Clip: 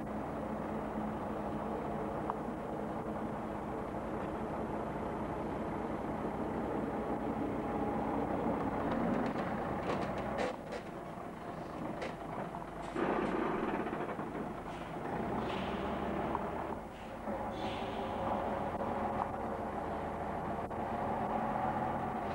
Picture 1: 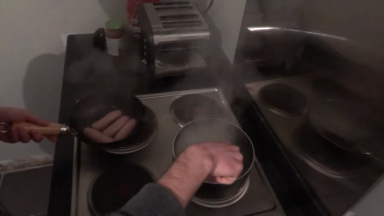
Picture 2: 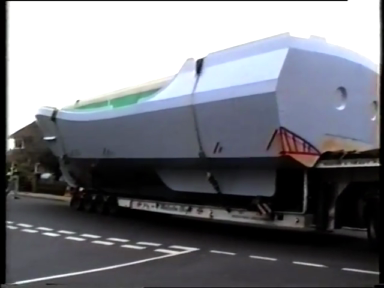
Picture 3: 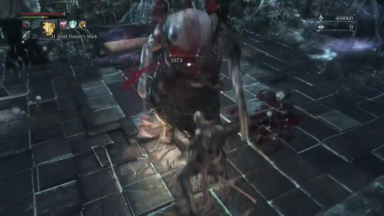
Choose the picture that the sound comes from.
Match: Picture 2